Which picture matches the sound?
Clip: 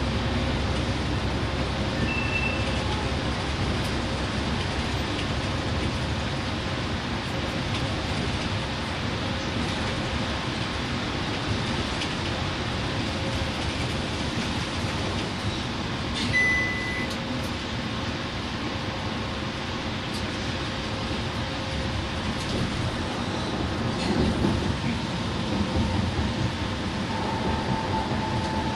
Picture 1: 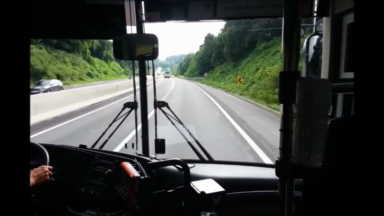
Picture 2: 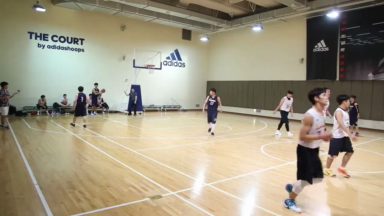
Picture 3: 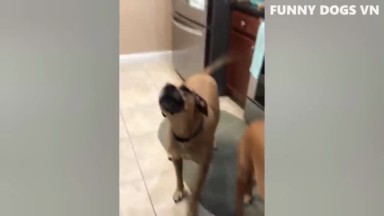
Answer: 1